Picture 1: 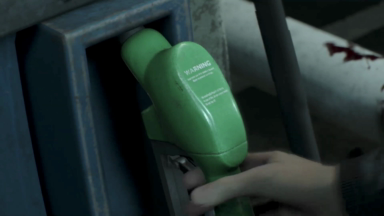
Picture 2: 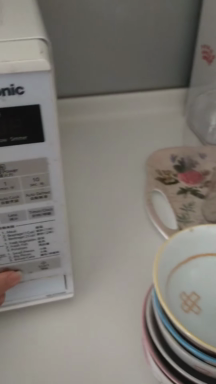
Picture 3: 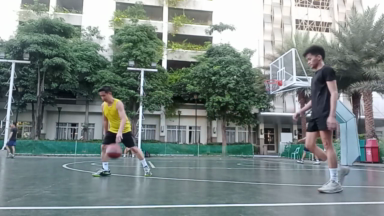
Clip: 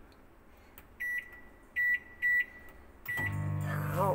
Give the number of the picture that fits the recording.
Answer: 2